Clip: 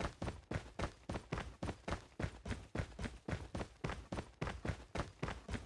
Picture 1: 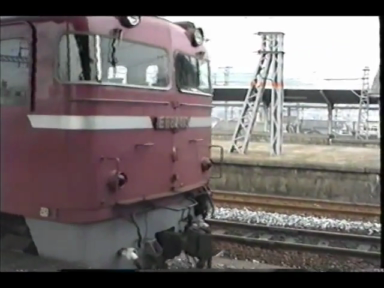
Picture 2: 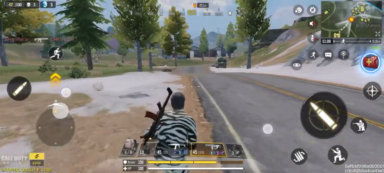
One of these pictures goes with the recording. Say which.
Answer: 2